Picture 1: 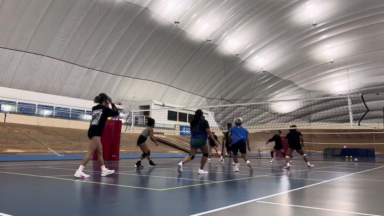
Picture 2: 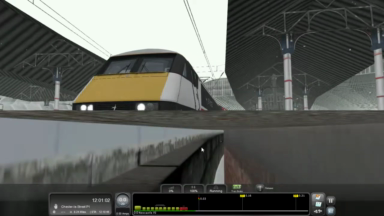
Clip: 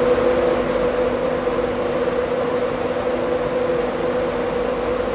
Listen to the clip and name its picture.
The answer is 2